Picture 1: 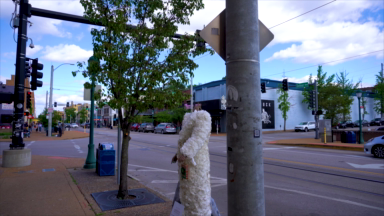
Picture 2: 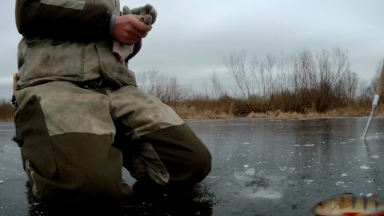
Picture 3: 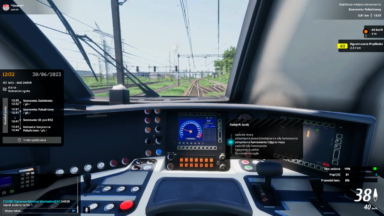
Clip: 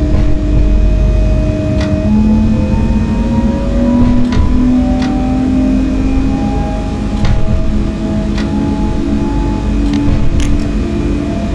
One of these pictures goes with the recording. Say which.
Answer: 3